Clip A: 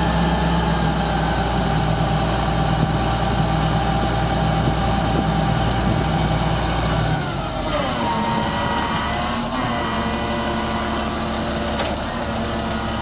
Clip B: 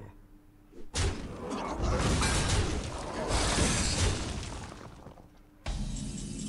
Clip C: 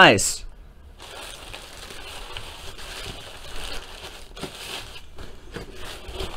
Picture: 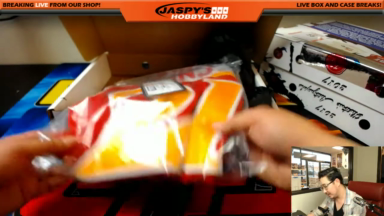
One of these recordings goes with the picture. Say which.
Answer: C